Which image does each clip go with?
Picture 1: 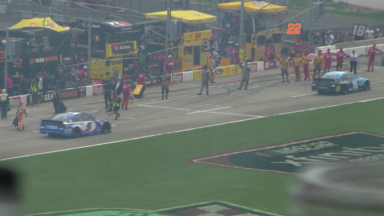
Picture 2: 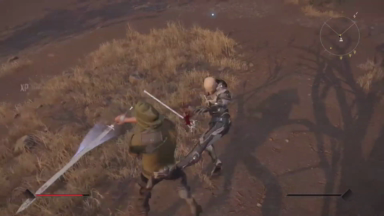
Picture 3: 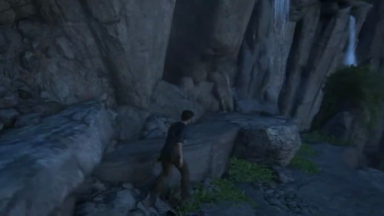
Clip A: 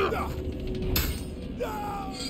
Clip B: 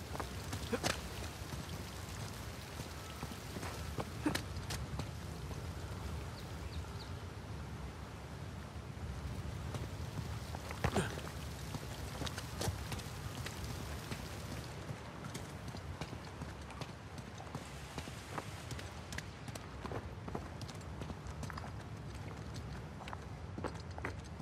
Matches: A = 2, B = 3